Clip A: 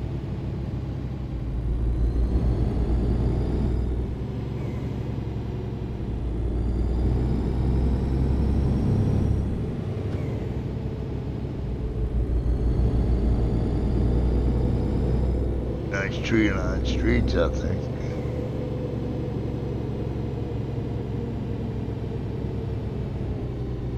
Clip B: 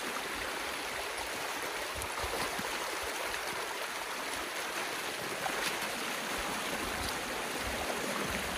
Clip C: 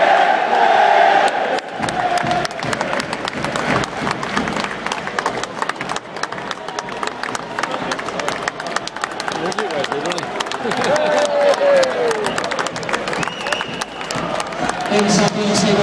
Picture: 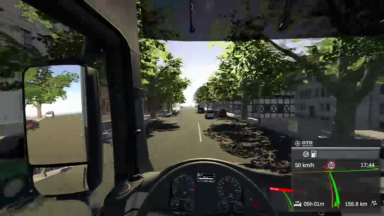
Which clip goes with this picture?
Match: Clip A